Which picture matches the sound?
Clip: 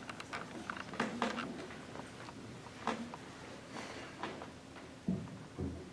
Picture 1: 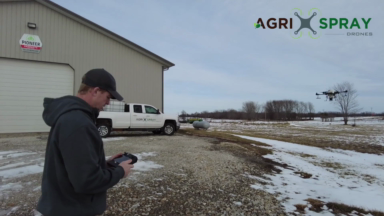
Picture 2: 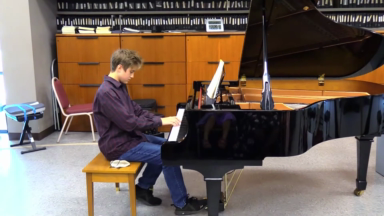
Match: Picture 2